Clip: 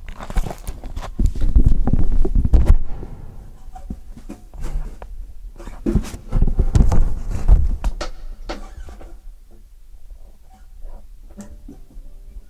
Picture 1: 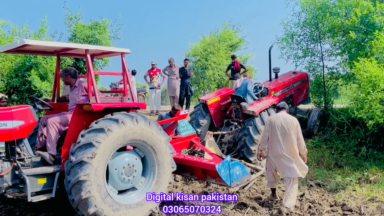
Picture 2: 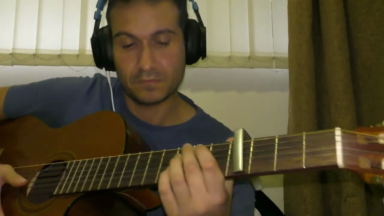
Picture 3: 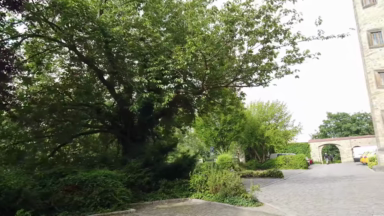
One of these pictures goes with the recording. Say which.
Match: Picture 2